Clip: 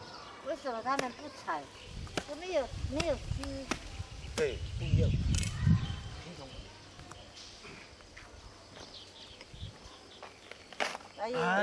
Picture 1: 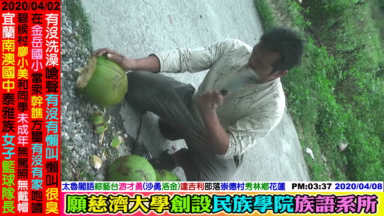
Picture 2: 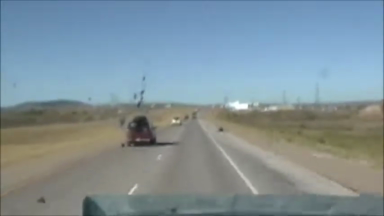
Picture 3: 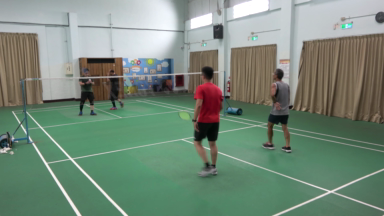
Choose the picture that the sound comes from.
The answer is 1